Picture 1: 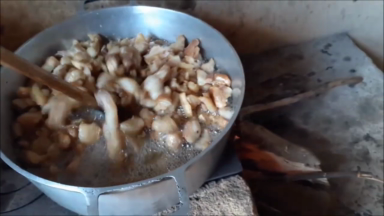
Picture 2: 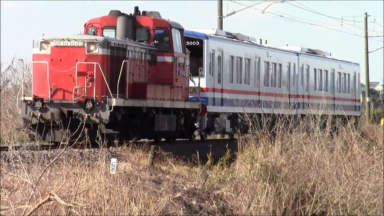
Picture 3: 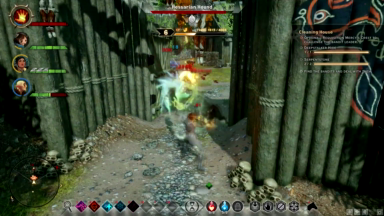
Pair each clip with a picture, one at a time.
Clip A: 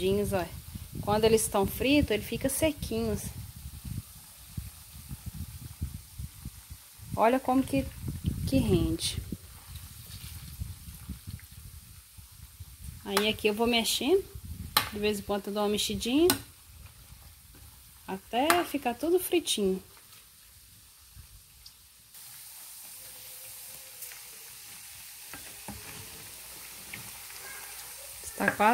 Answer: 1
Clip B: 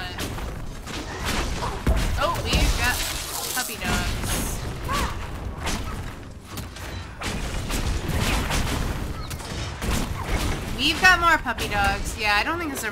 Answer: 3